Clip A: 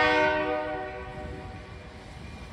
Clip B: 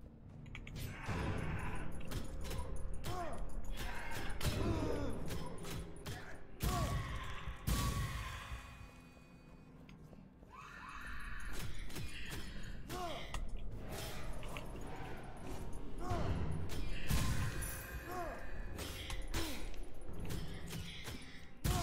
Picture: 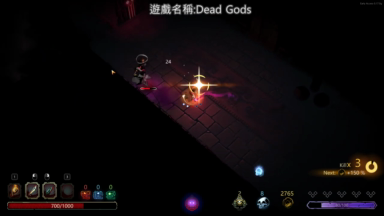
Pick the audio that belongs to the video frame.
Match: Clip B